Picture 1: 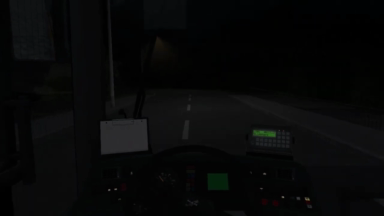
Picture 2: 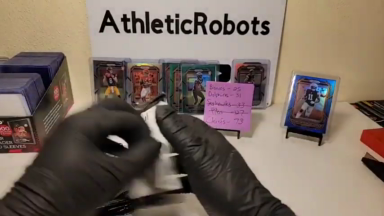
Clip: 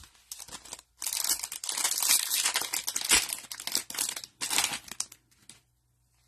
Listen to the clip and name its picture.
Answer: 2